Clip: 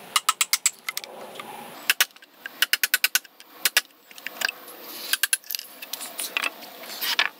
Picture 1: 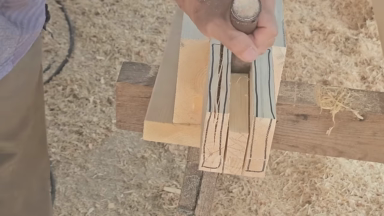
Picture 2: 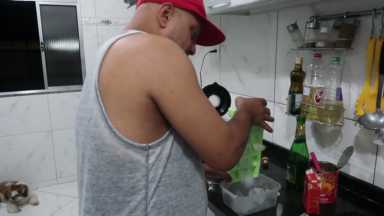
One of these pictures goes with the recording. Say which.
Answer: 1